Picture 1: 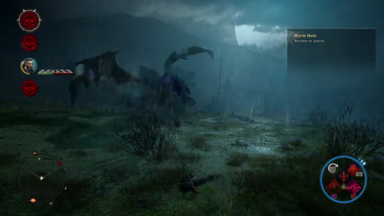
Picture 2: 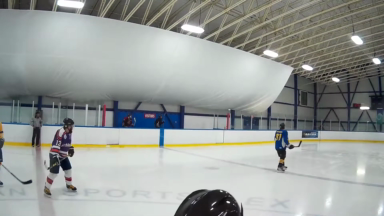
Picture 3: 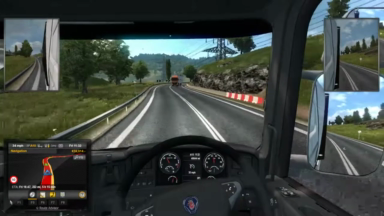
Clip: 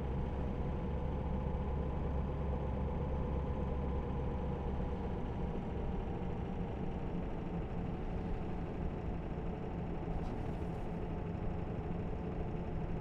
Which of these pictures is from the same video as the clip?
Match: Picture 3